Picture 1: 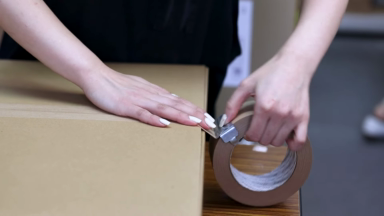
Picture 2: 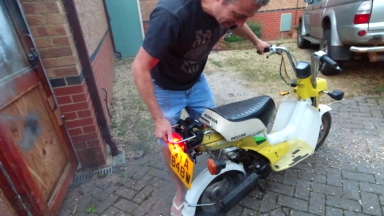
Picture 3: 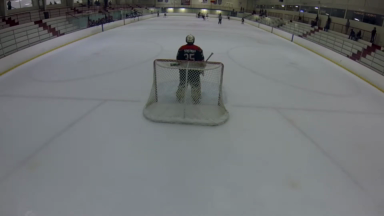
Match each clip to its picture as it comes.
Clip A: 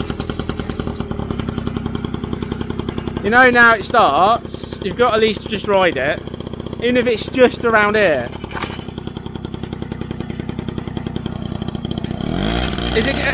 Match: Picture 2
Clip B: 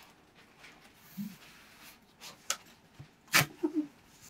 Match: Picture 1